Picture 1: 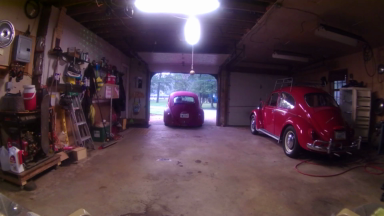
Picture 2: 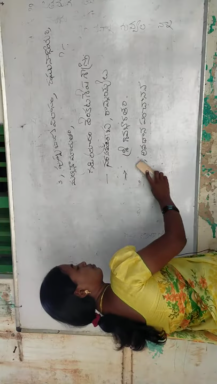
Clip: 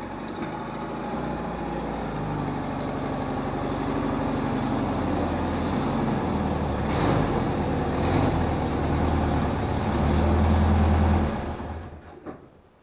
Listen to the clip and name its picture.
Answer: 1